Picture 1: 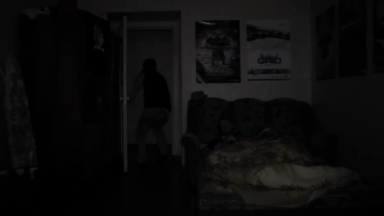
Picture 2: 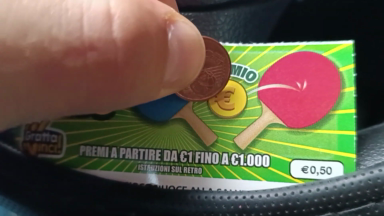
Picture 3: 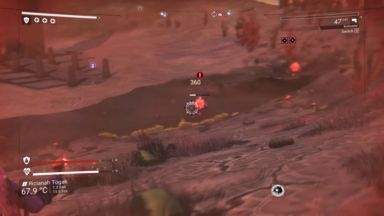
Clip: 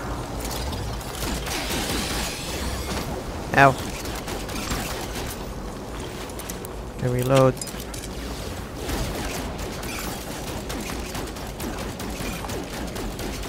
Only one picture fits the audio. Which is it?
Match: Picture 3